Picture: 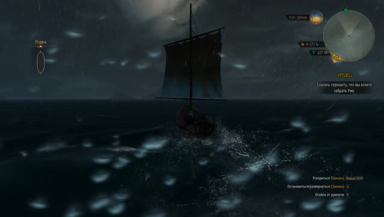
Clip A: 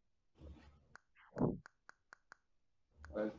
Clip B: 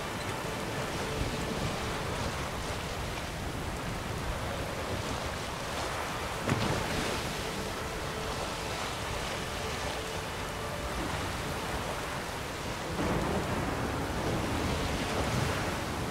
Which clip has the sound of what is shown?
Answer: B